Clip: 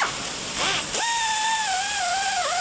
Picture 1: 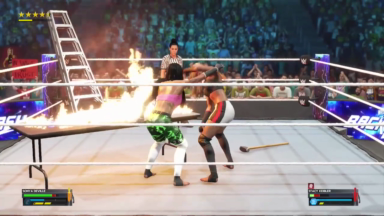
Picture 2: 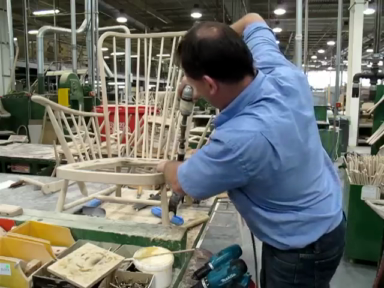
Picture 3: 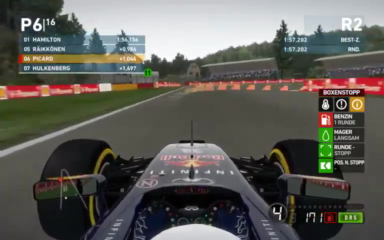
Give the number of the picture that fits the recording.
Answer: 2